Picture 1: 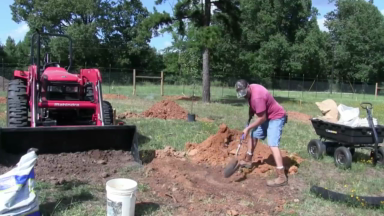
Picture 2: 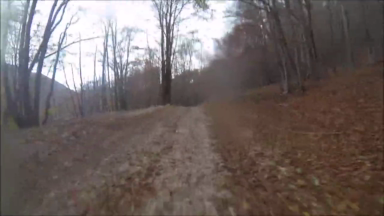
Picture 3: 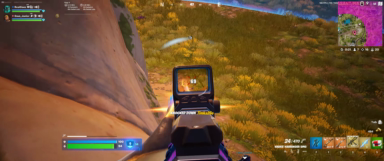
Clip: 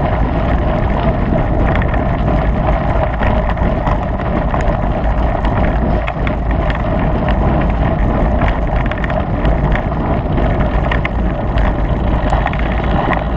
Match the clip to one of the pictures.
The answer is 2